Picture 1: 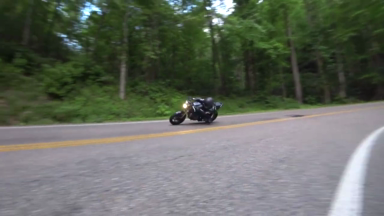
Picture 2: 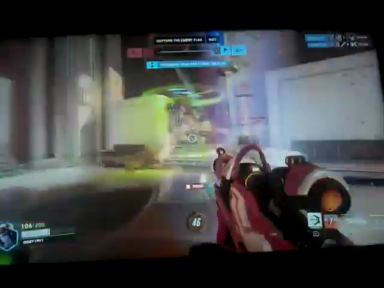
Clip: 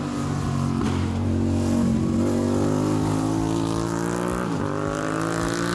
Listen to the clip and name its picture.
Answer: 1